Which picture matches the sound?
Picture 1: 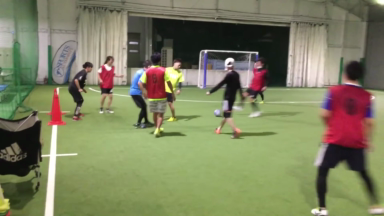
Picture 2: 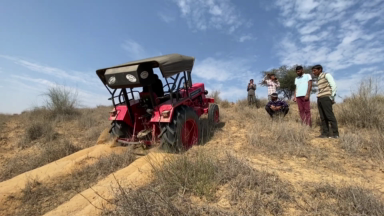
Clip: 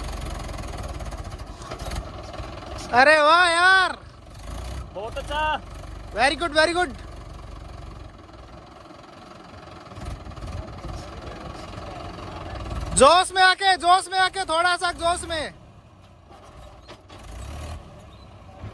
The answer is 2